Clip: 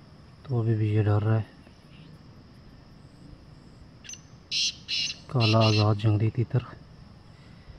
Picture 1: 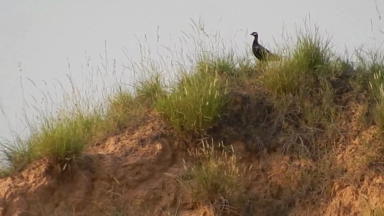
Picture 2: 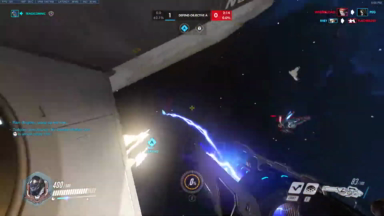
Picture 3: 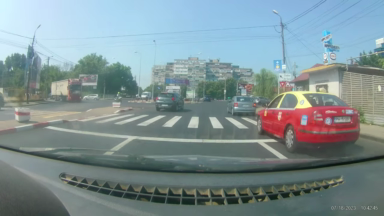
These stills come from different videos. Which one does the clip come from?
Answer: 1